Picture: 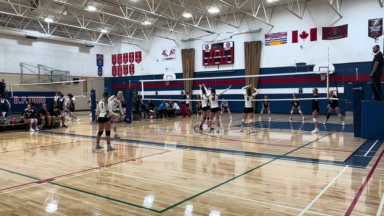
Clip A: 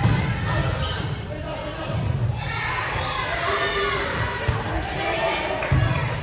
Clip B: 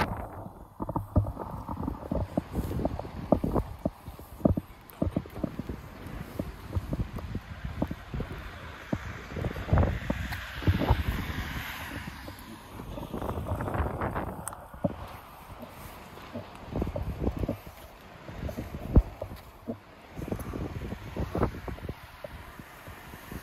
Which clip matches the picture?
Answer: A